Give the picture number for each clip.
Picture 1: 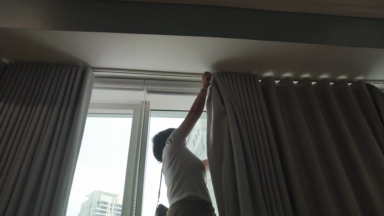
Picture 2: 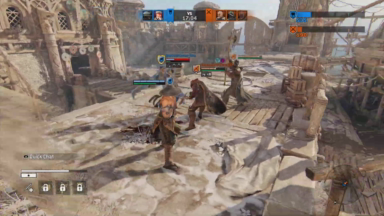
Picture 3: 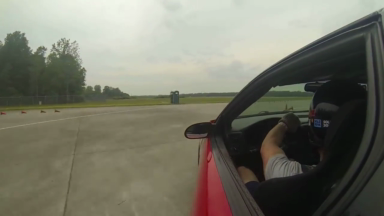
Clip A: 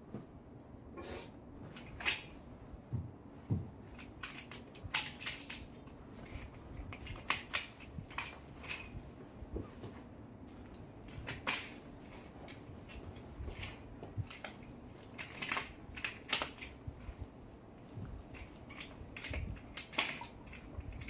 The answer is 1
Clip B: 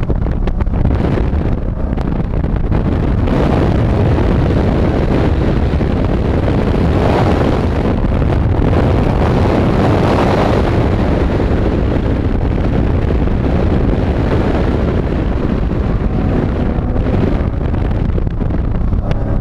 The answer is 3